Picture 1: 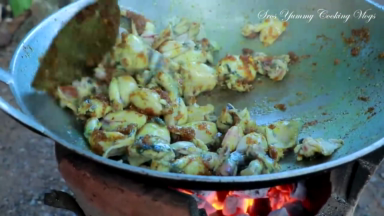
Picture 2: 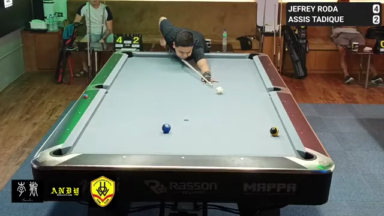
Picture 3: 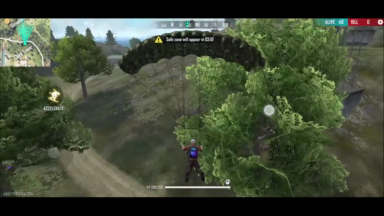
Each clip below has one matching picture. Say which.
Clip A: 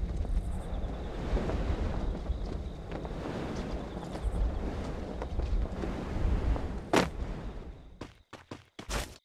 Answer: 3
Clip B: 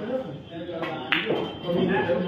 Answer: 2